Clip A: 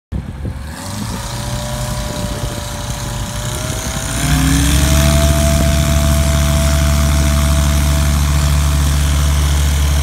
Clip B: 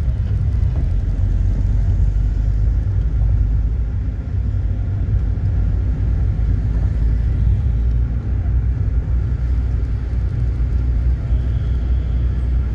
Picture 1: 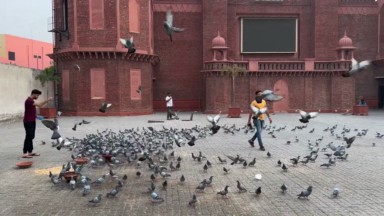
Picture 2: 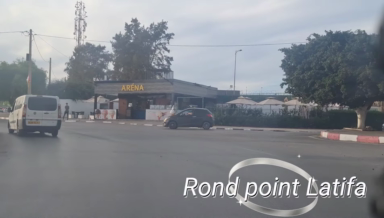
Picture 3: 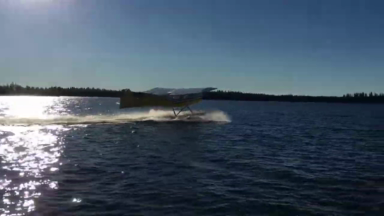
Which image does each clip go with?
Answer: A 3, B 2